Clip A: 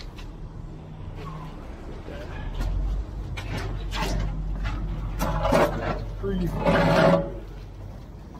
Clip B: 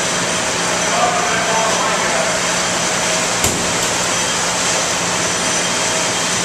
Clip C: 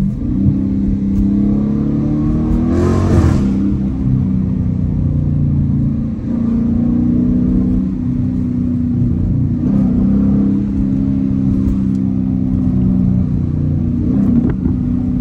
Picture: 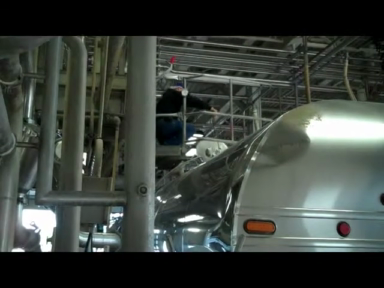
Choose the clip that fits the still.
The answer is B